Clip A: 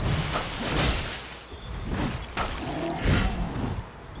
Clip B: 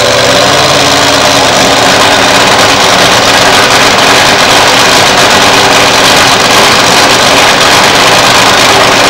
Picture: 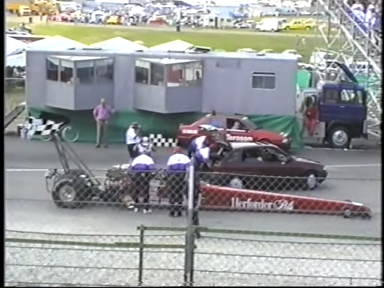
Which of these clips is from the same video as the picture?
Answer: B